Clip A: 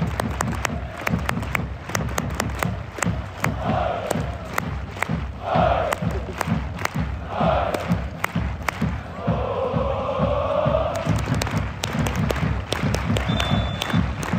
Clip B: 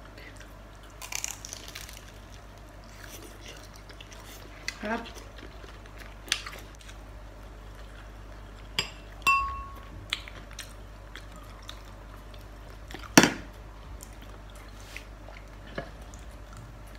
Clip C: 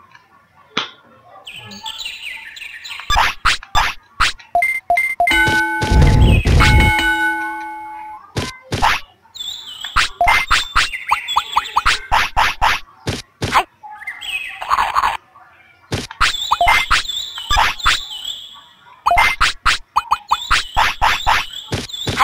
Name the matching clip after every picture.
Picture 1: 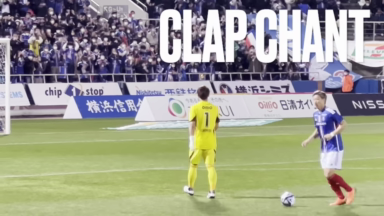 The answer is A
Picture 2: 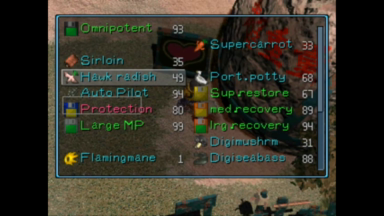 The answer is C